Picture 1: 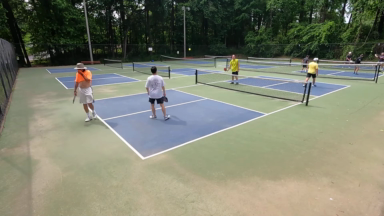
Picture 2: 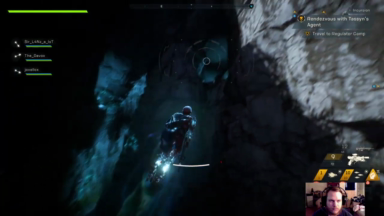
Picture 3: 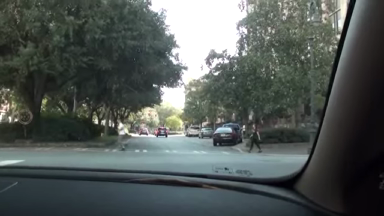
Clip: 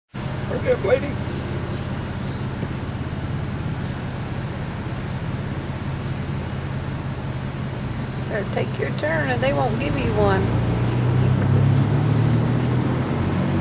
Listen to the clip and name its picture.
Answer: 3